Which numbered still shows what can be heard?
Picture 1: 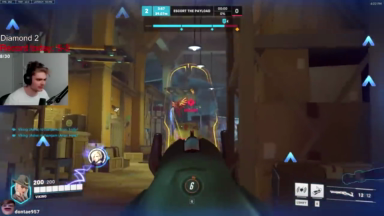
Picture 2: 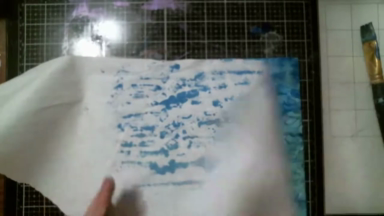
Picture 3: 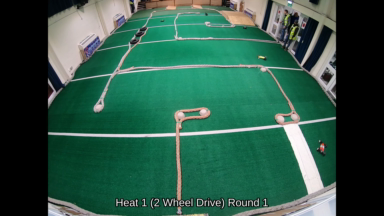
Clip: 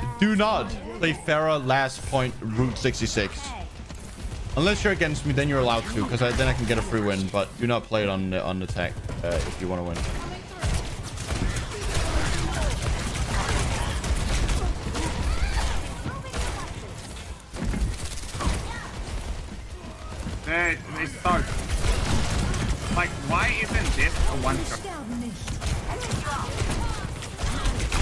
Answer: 1